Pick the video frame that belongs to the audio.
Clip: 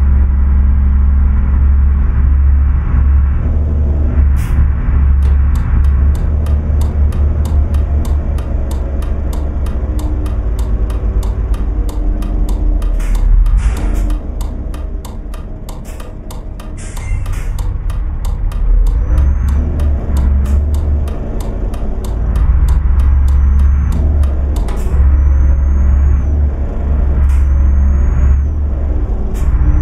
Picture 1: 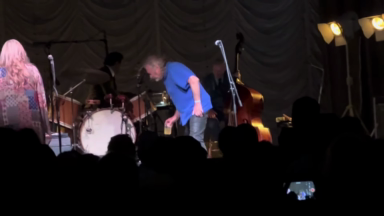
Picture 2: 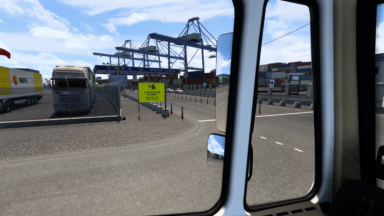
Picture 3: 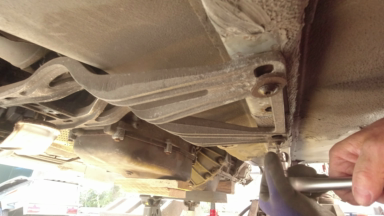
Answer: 2